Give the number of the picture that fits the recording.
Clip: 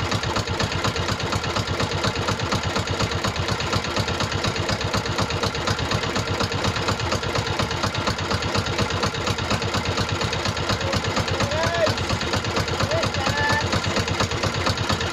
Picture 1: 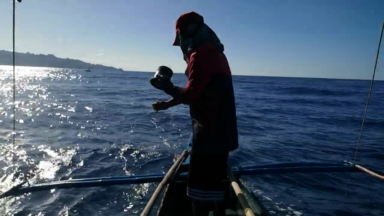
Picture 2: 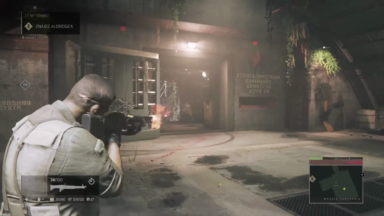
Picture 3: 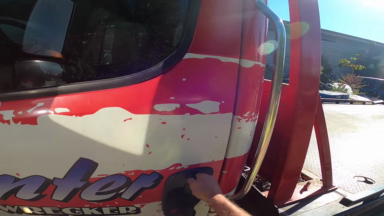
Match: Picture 1